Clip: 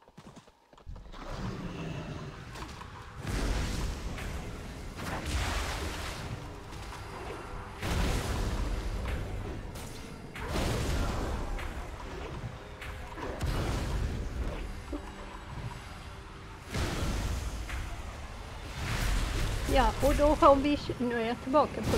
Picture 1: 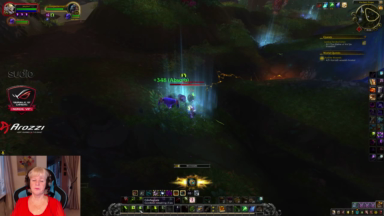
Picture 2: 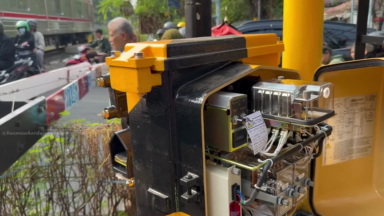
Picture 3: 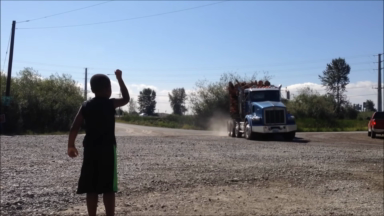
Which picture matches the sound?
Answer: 1